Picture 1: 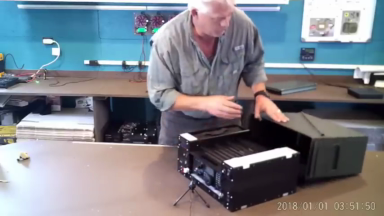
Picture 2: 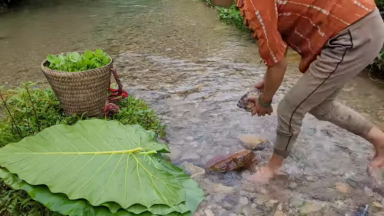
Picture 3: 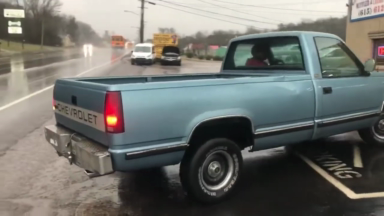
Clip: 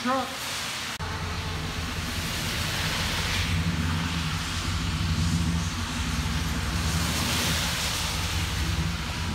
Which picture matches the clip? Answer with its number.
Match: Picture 3